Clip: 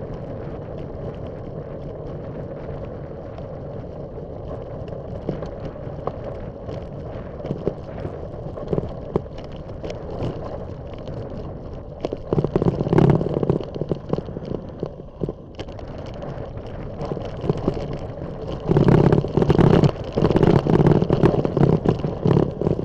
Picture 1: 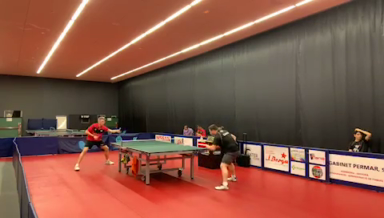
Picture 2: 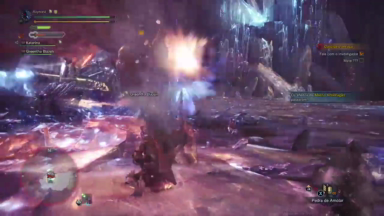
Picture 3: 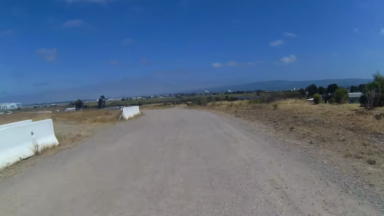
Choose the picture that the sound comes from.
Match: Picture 3